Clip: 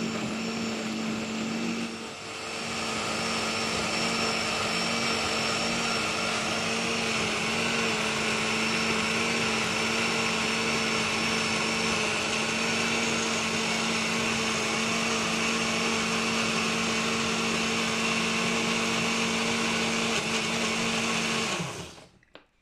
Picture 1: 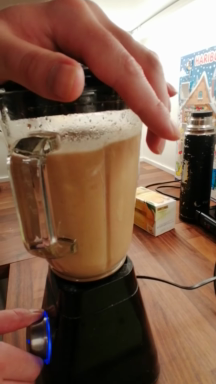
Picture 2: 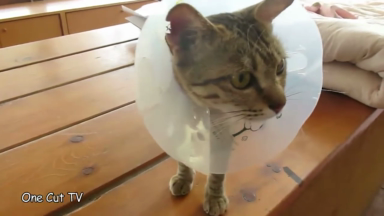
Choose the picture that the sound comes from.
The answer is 1